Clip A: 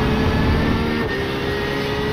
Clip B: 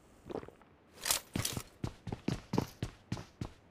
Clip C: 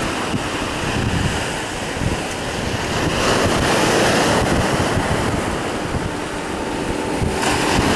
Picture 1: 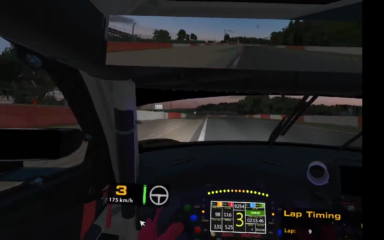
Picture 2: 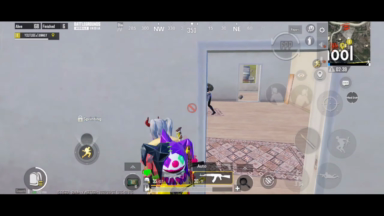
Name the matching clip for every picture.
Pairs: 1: A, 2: B